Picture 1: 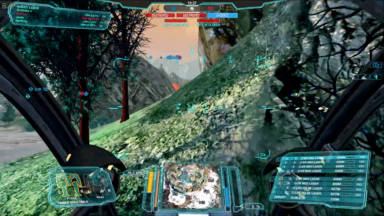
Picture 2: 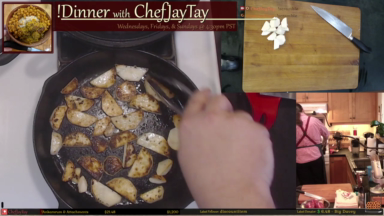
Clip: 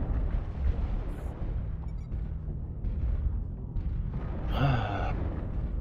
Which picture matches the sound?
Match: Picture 1